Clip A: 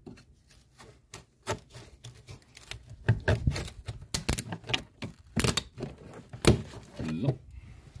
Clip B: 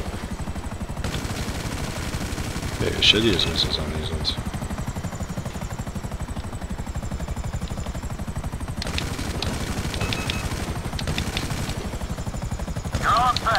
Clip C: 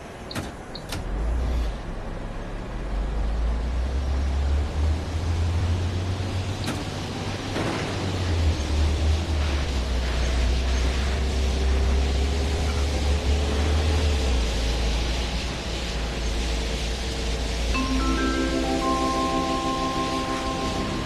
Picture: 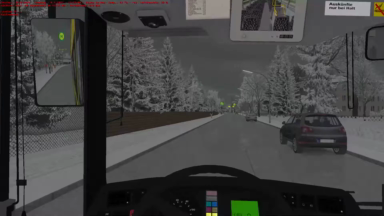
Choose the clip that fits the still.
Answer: C